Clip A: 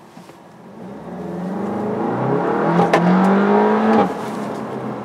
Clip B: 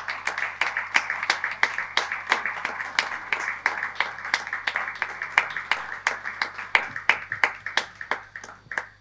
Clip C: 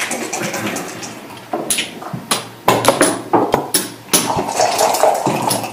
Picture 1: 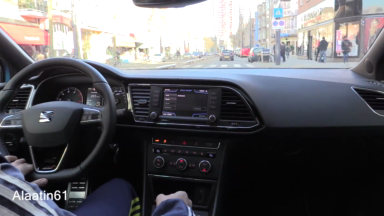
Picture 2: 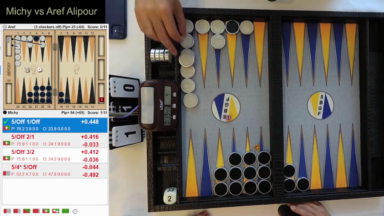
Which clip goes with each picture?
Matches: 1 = A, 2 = C